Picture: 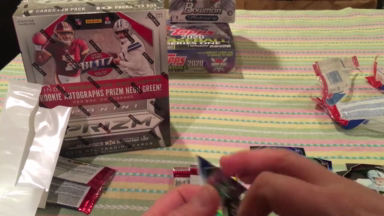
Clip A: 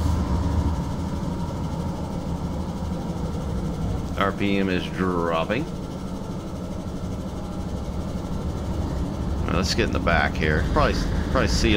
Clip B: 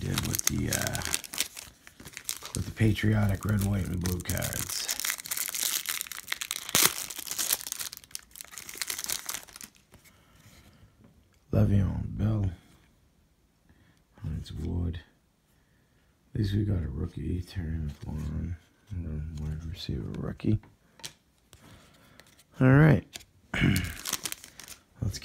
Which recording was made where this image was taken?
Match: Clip B